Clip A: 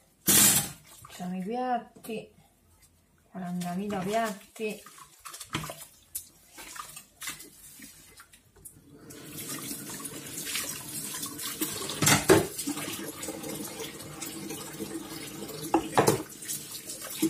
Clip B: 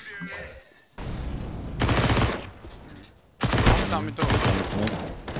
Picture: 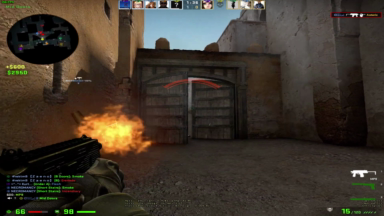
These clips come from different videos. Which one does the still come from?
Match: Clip B